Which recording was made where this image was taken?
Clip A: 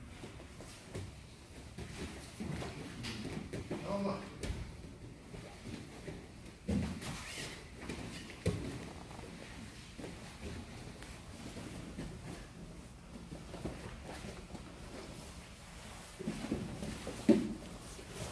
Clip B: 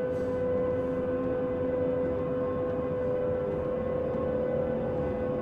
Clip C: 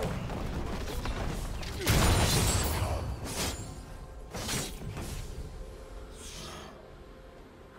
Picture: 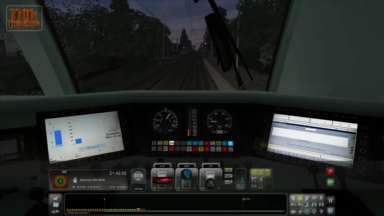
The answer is B